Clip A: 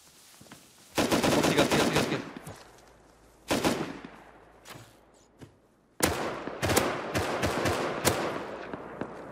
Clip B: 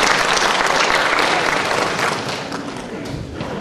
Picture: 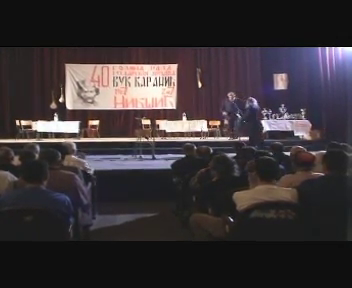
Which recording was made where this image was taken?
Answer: B